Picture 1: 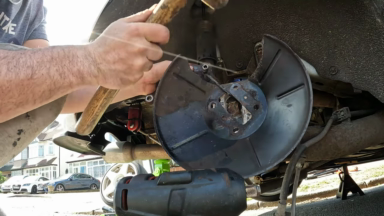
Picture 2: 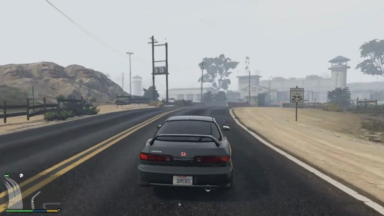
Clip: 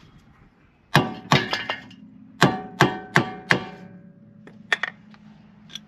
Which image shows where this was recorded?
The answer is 1